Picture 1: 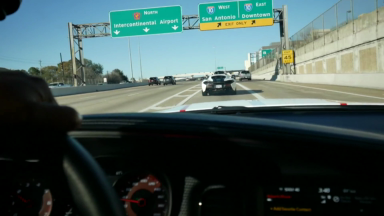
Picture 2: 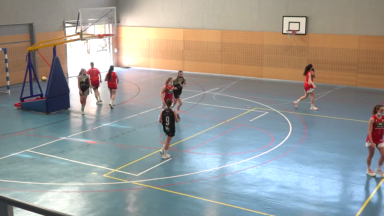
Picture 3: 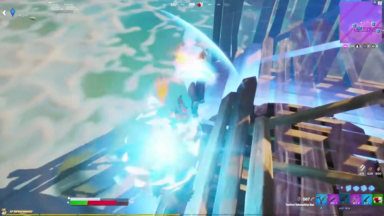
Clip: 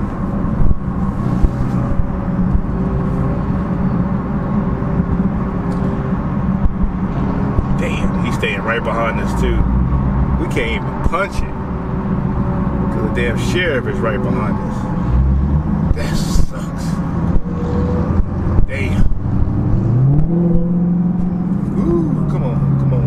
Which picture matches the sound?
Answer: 1